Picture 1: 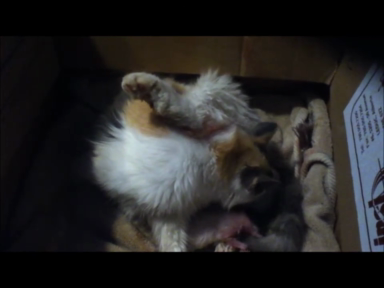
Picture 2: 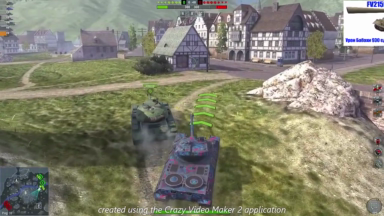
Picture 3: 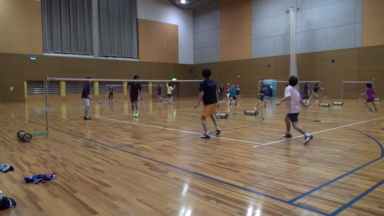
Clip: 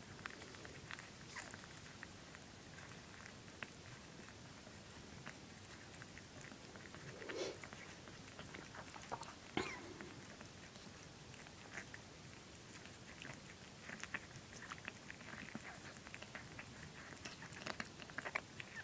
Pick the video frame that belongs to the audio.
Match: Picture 1